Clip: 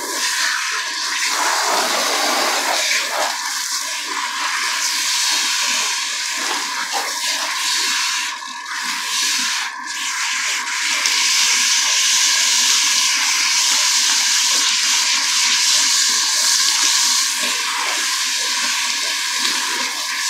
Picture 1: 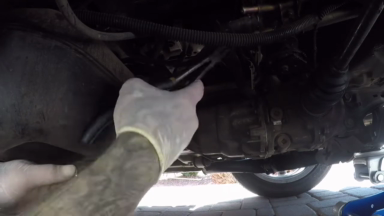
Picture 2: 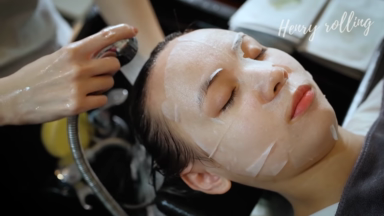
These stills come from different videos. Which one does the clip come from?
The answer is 2